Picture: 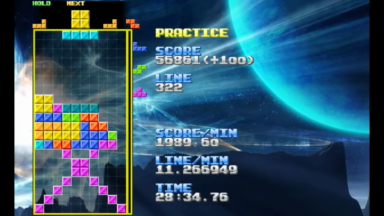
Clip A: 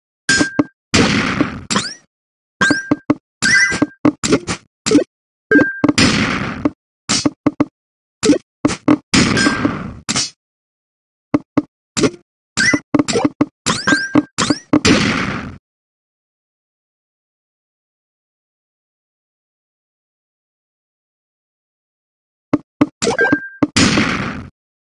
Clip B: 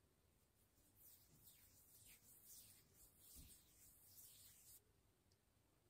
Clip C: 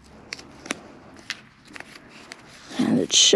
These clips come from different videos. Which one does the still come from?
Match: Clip A